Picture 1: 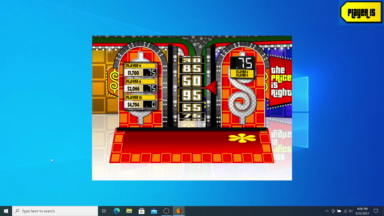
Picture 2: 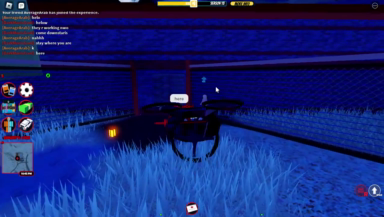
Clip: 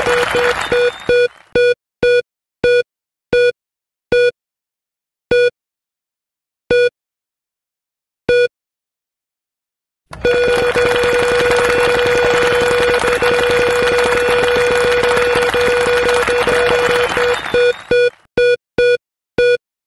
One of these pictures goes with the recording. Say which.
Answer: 1